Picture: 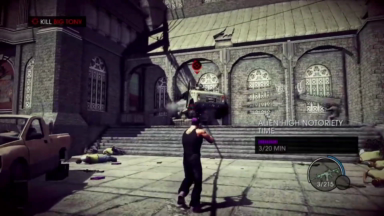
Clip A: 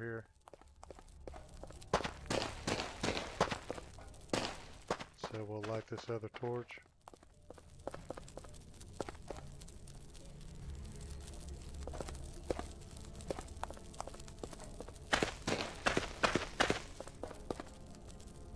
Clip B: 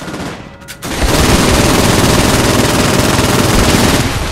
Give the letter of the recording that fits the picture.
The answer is B